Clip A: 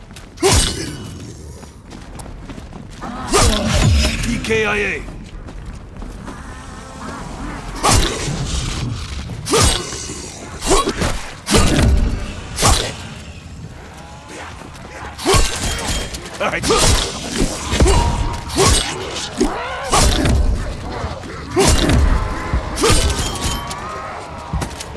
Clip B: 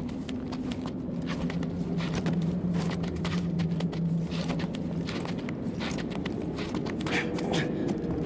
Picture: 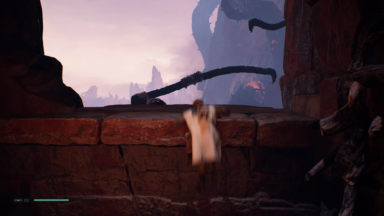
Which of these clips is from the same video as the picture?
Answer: B